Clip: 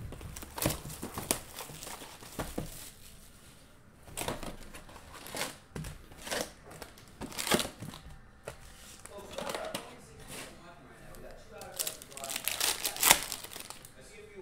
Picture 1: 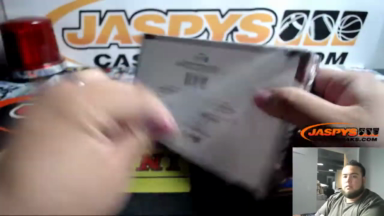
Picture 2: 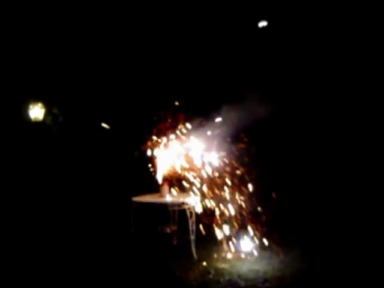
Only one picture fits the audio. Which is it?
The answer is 1